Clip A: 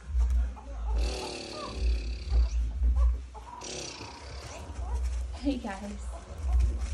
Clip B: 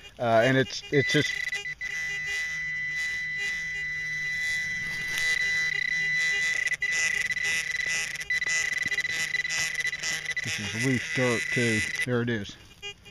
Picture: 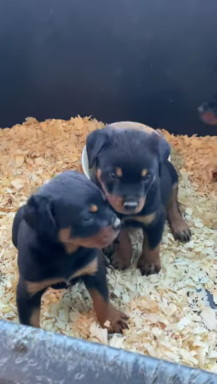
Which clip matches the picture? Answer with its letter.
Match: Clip A